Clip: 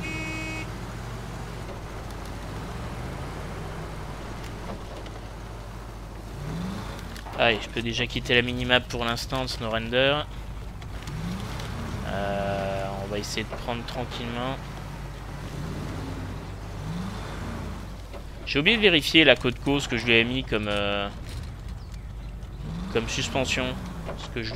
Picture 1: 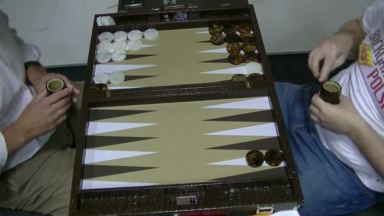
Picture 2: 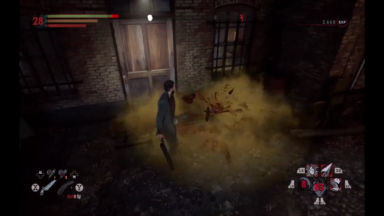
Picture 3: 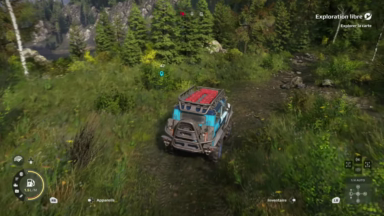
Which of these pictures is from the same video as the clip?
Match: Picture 3